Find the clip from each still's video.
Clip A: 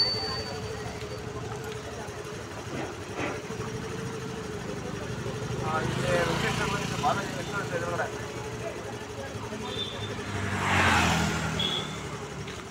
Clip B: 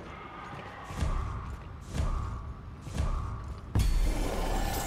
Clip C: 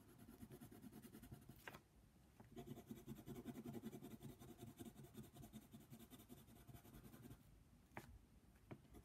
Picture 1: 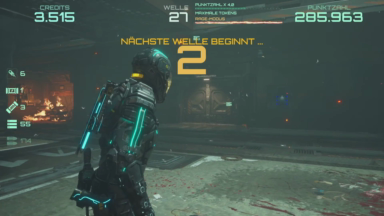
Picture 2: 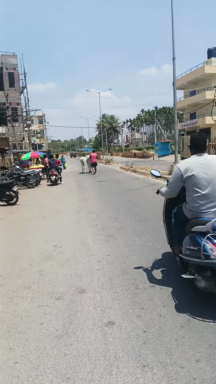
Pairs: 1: B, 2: A